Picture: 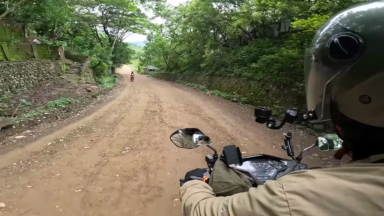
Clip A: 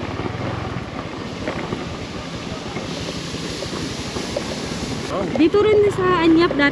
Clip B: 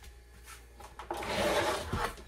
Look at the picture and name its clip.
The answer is A